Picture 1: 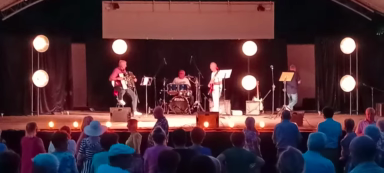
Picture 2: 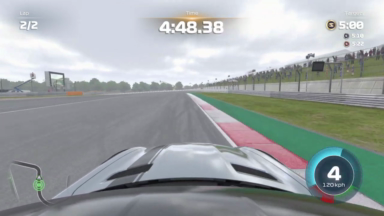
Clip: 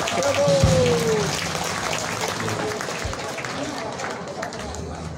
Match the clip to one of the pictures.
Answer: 1